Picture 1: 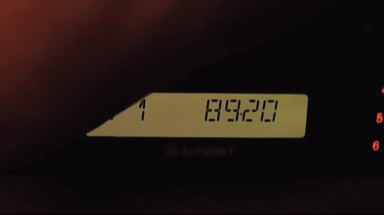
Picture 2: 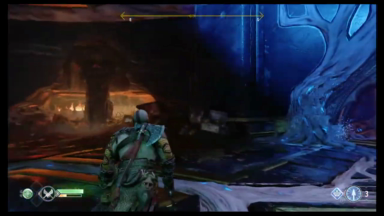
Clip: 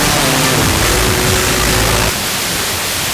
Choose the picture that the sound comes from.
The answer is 1